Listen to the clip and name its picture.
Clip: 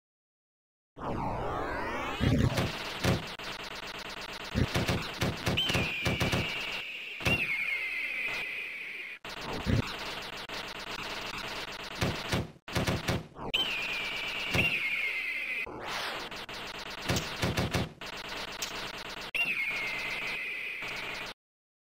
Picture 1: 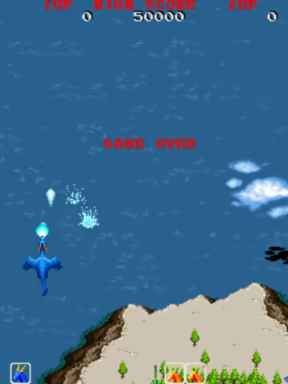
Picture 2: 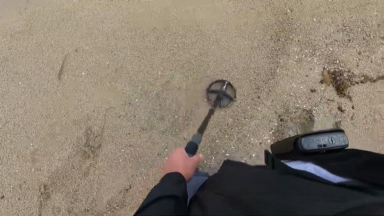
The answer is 1